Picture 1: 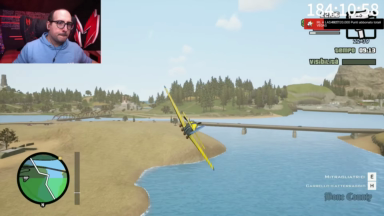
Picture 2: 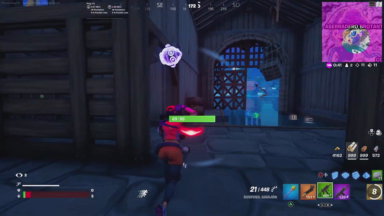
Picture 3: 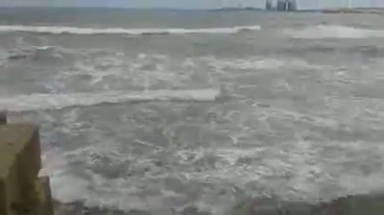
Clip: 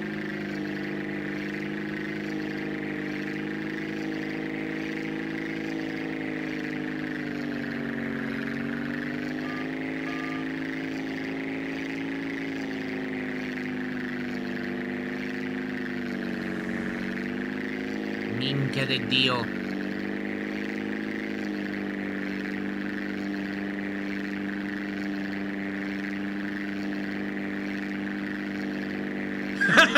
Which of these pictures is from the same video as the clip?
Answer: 1